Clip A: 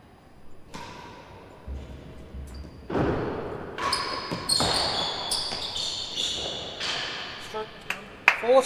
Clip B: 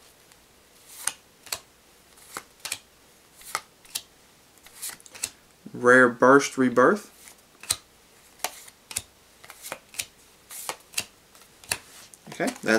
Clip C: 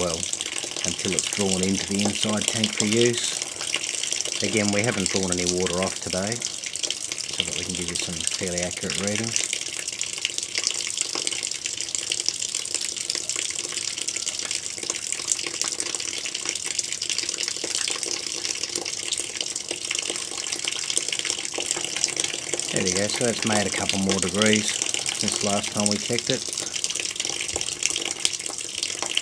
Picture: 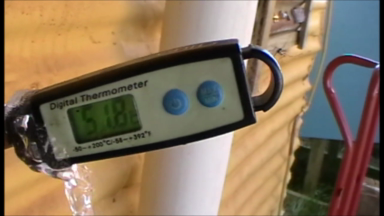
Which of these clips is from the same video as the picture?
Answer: C